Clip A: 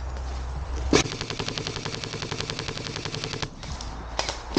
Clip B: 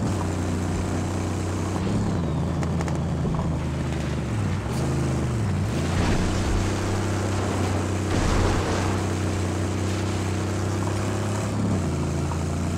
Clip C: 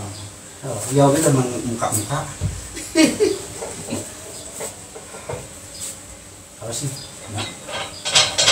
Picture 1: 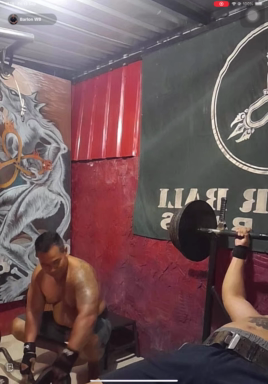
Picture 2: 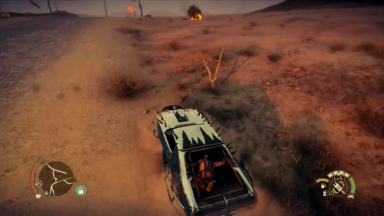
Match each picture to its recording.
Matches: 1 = C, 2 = B